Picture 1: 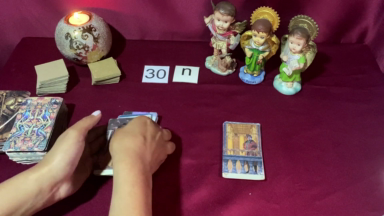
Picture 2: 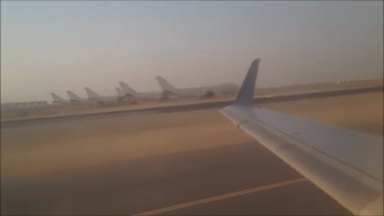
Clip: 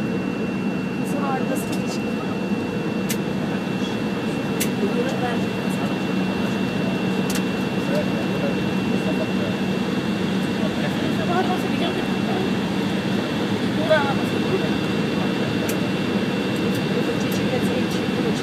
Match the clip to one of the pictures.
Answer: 2